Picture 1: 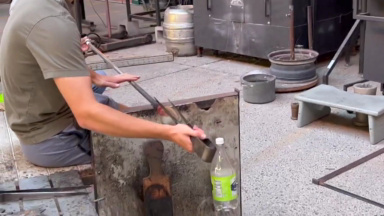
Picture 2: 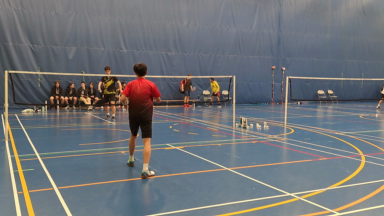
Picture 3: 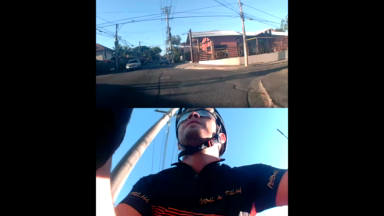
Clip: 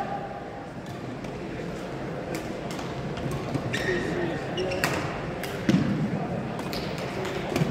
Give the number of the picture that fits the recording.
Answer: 2